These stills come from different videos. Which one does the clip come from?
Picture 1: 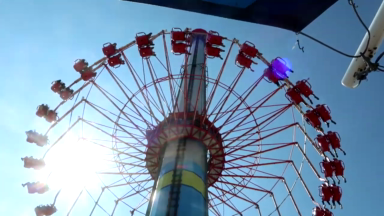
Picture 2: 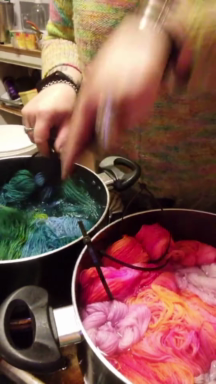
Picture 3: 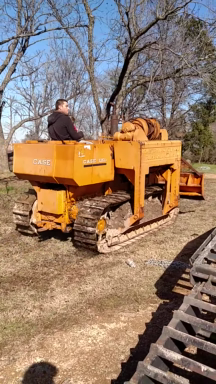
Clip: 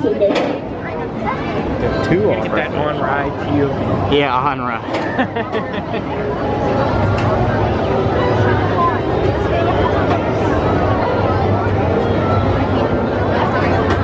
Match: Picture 1